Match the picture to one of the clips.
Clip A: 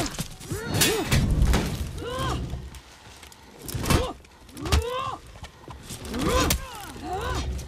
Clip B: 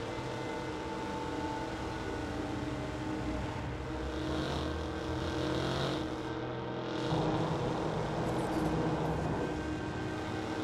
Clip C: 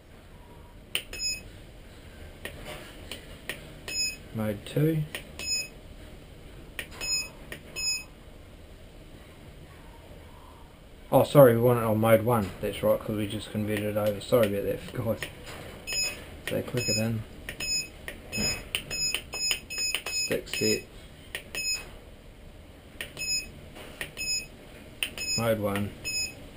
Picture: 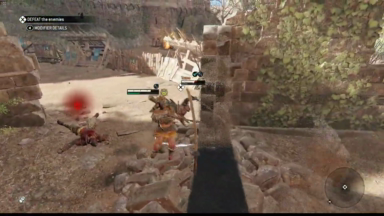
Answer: A